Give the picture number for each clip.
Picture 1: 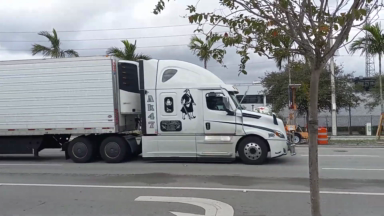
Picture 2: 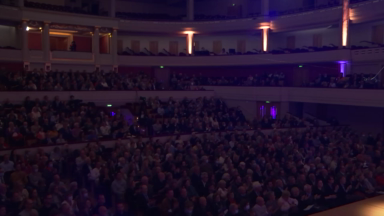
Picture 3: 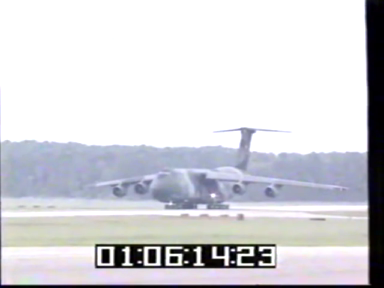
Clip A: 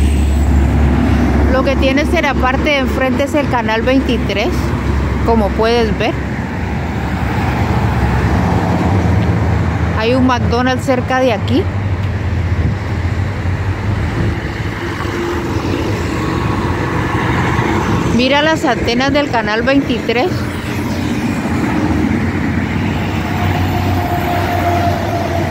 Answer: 1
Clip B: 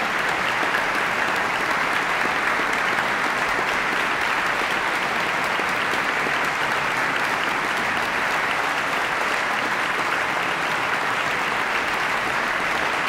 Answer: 2